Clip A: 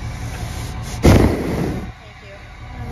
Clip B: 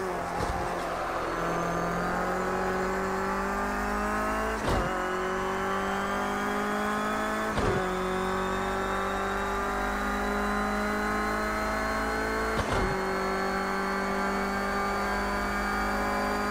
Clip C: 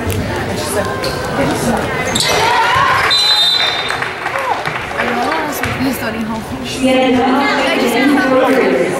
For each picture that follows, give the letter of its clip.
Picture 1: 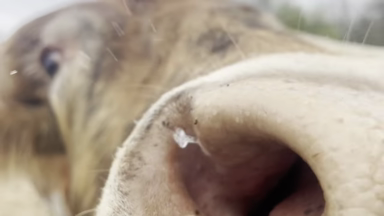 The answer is A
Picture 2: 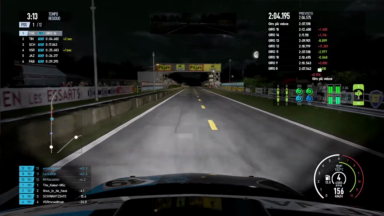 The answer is B